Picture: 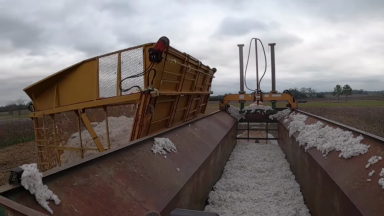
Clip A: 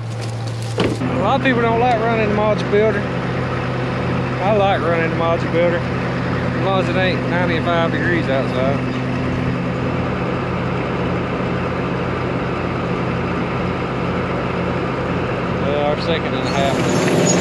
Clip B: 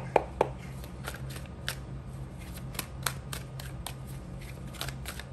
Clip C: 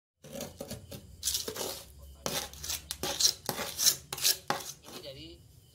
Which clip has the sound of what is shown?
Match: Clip A